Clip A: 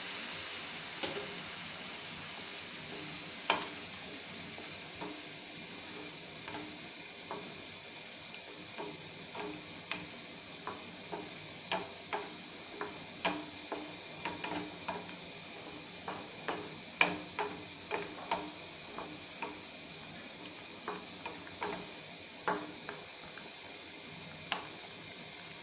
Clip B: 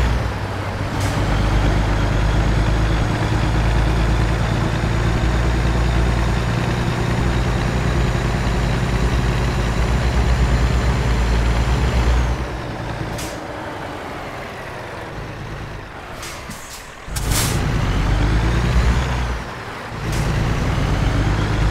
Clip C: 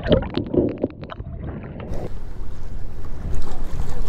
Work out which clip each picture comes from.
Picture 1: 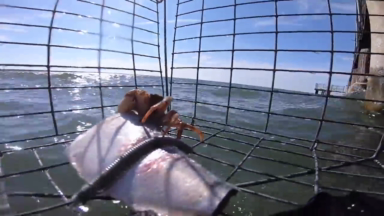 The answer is C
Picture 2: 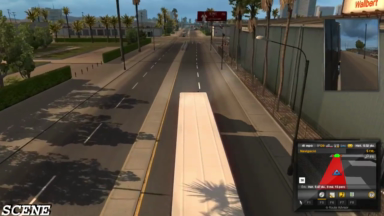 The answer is B